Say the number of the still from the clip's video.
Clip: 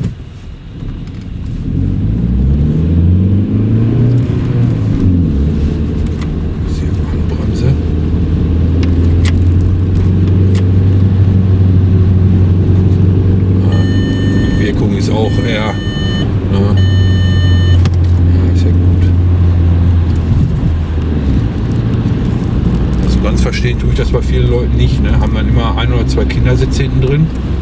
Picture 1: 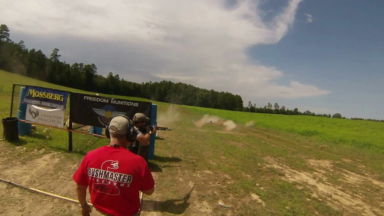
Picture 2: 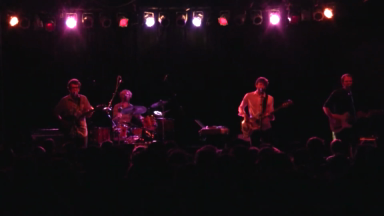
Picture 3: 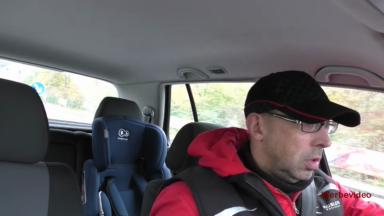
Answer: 3